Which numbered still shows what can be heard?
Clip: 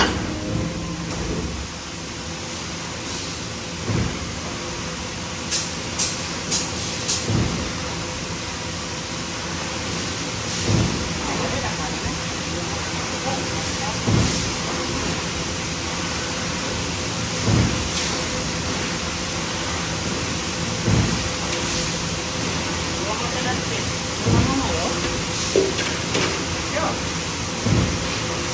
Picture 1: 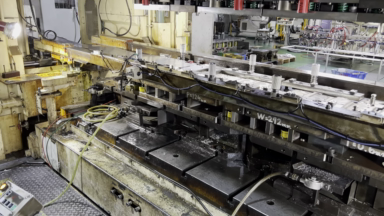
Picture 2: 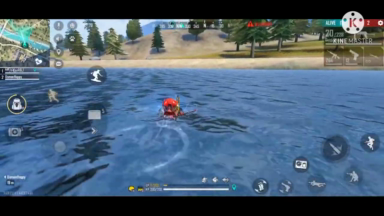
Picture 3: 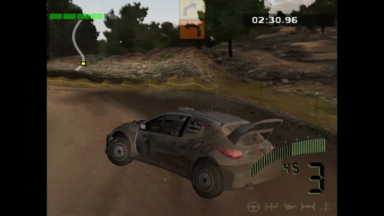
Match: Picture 1